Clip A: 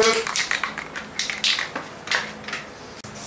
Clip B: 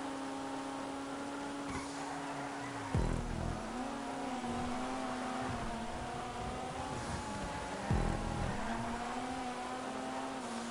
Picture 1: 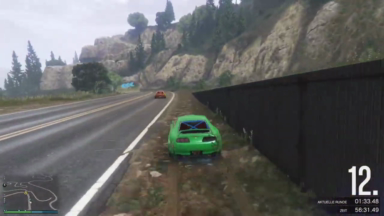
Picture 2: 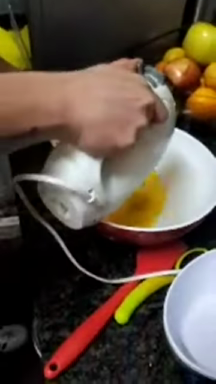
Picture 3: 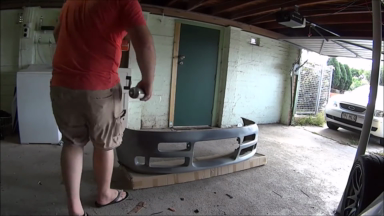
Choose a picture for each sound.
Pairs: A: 3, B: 1